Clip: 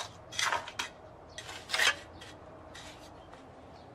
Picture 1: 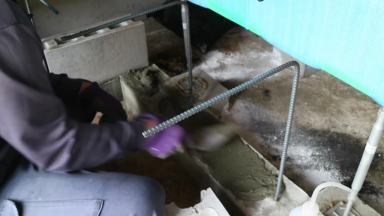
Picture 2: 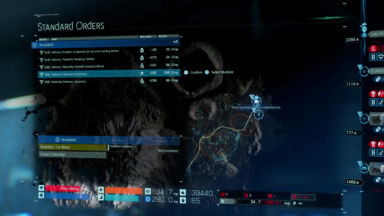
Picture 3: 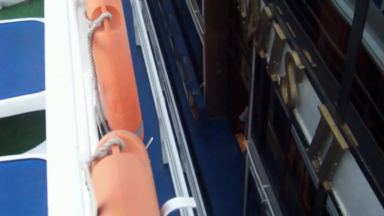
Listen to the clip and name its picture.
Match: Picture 1